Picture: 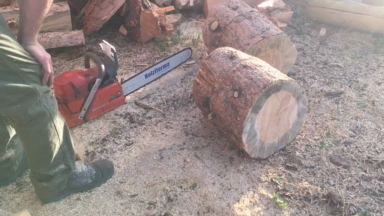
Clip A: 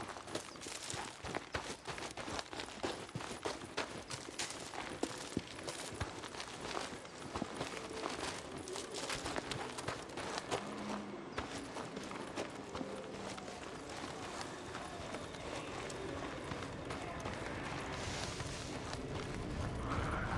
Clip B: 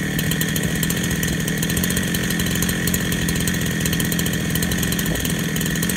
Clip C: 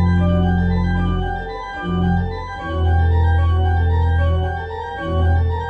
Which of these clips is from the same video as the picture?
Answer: B